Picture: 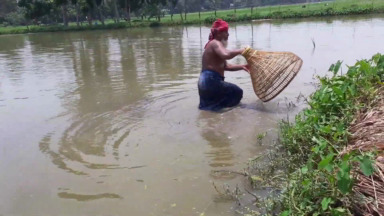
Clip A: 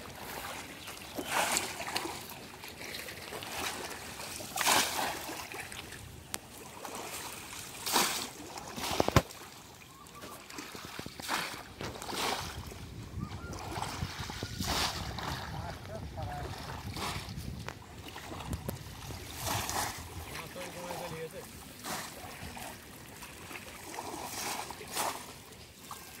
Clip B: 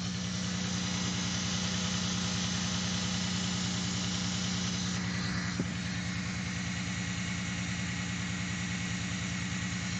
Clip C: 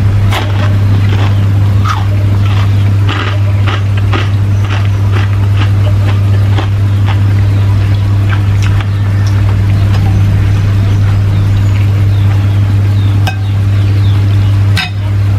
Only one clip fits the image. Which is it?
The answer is A